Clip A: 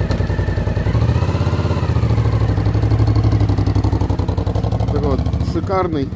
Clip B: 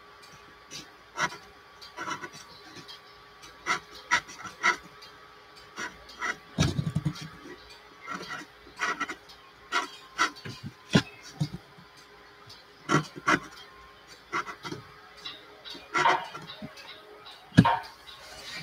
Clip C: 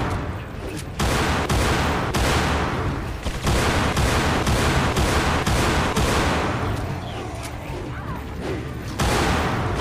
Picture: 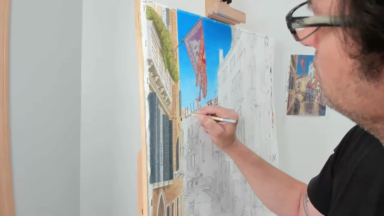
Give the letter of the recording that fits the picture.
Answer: B